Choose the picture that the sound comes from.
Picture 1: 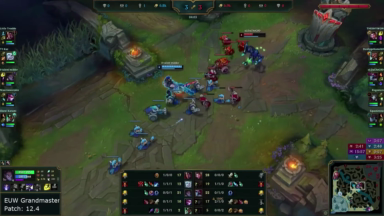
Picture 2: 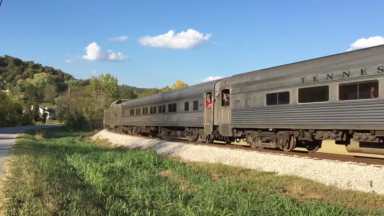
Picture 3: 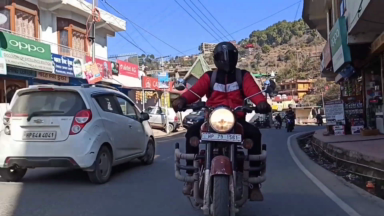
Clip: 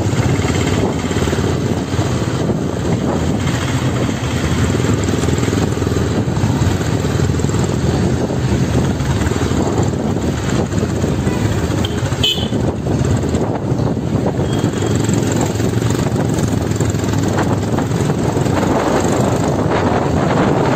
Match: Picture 3